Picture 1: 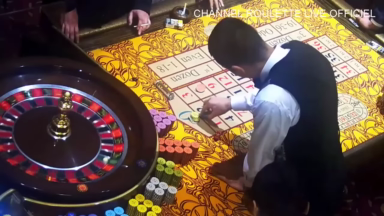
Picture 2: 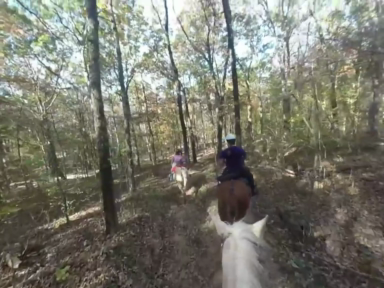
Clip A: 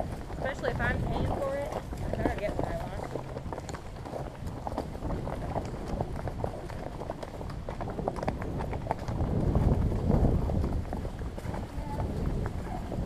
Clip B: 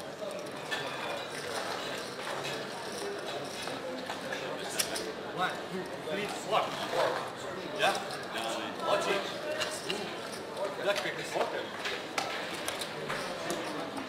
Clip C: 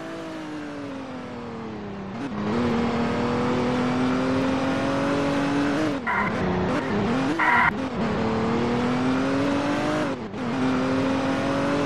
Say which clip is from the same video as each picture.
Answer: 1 B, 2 A